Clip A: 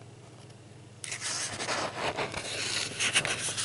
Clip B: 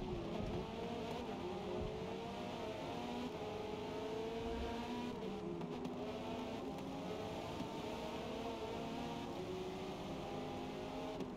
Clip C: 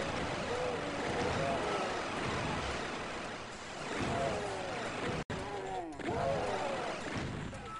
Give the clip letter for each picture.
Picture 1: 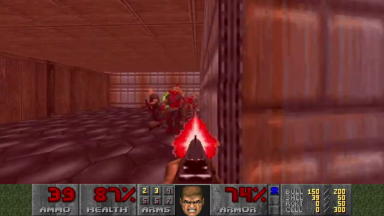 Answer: C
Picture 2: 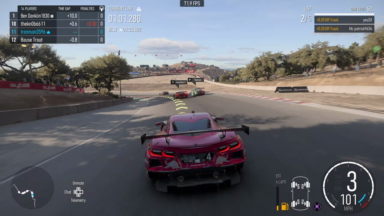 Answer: B